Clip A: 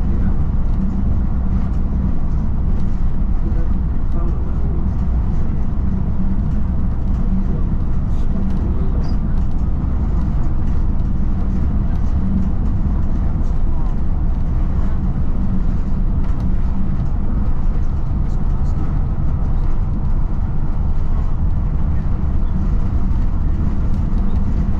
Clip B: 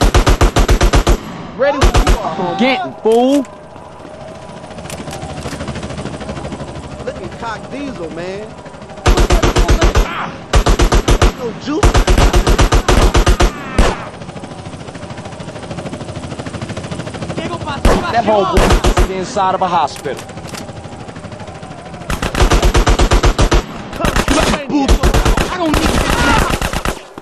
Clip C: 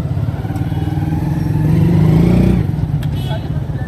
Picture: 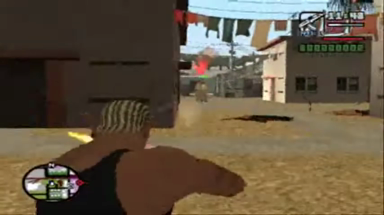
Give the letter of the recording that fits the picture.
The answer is B